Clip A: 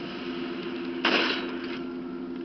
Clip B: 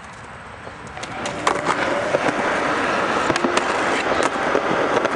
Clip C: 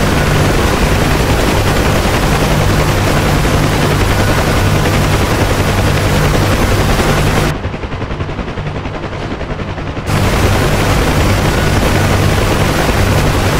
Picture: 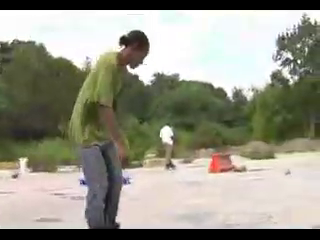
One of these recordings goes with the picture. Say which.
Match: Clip B